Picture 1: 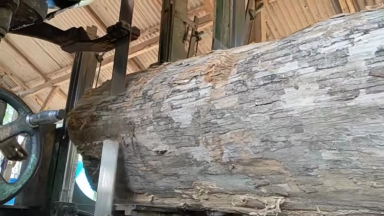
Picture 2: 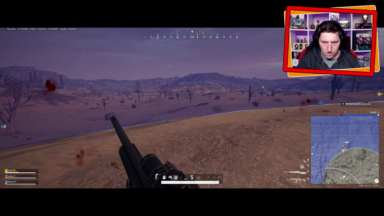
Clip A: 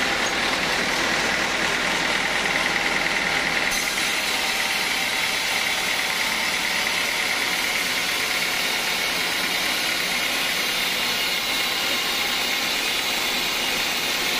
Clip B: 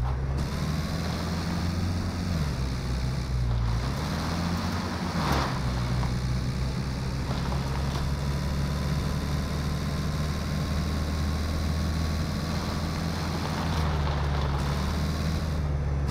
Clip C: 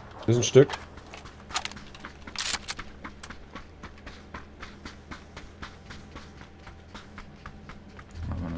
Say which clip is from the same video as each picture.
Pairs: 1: A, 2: C